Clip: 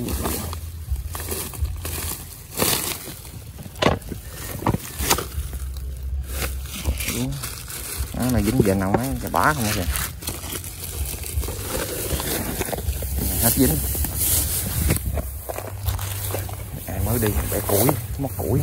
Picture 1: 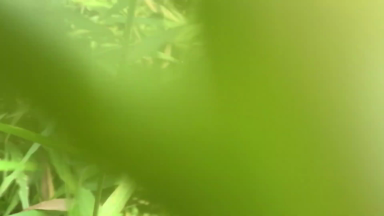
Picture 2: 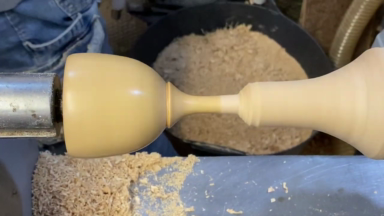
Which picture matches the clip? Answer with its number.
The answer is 1